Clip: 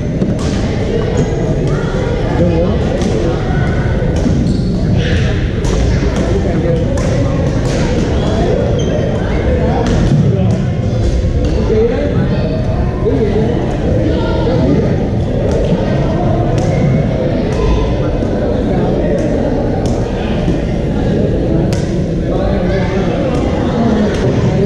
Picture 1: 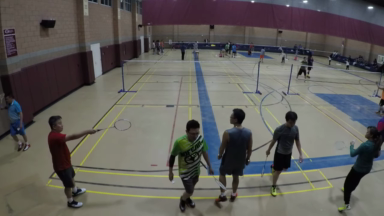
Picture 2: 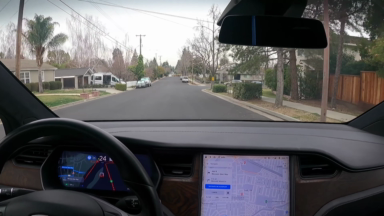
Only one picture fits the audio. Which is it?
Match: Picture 1